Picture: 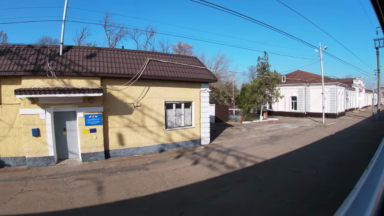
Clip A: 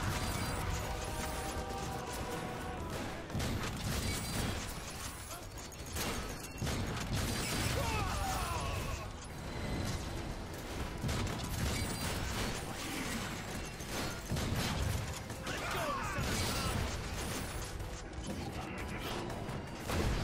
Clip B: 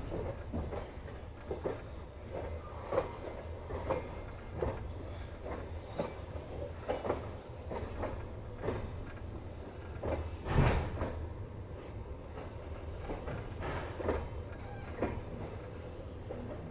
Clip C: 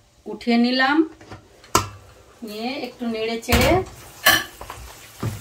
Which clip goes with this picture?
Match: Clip B